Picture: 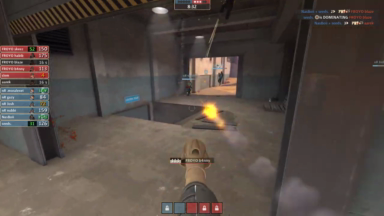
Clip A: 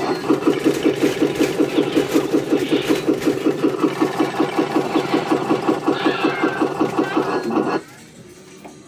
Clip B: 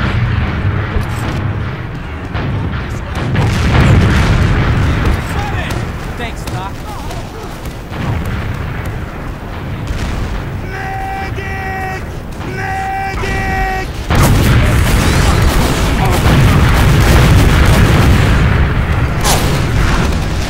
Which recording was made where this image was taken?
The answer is B